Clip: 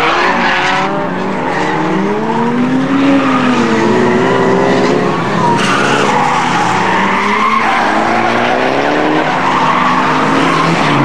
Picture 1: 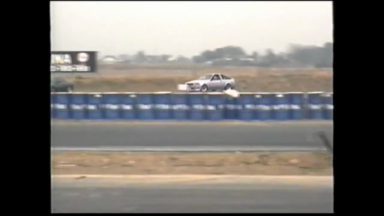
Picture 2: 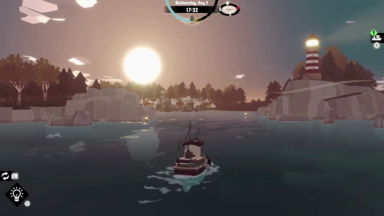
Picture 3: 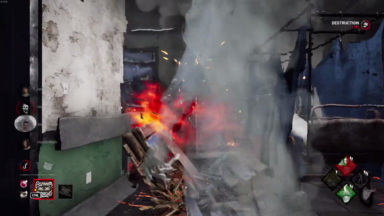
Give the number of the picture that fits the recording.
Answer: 1